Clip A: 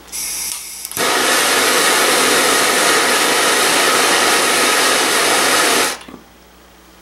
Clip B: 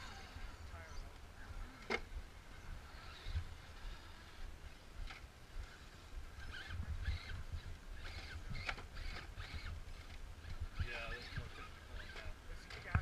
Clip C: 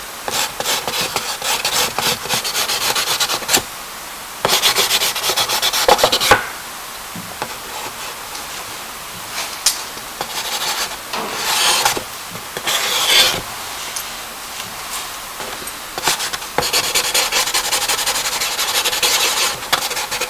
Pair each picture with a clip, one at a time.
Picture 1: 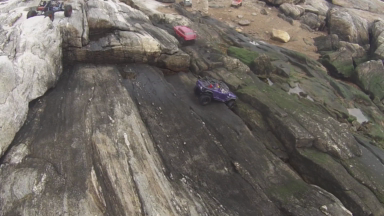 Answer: B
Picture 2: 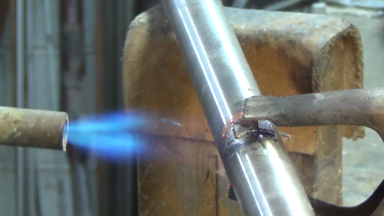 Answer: A